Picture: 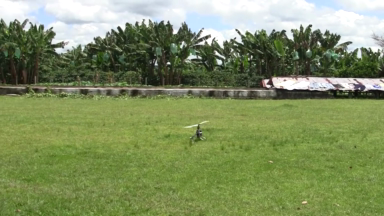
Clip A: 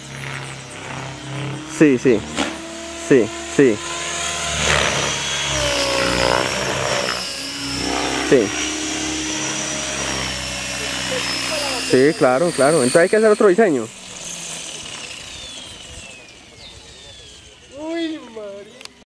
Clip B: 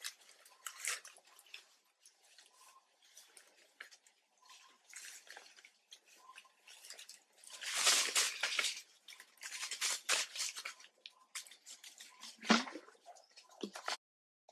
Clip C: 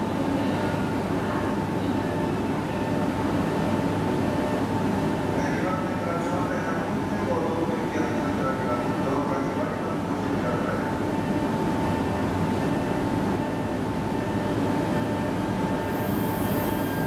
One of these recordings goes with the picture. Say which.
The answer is A